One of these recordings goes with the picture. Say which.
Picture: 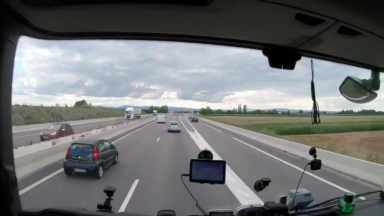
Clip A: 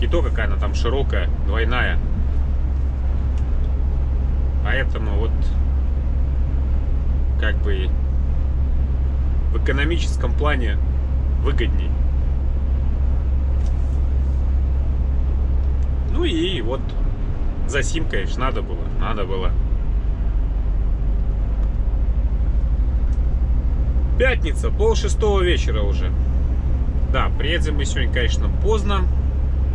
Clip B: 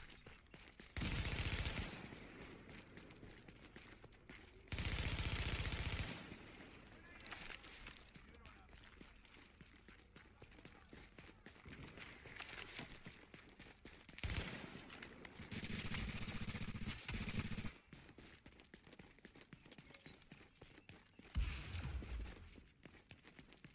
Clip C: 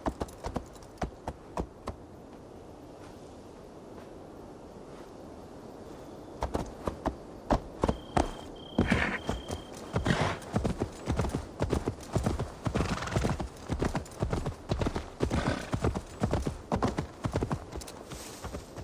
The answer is A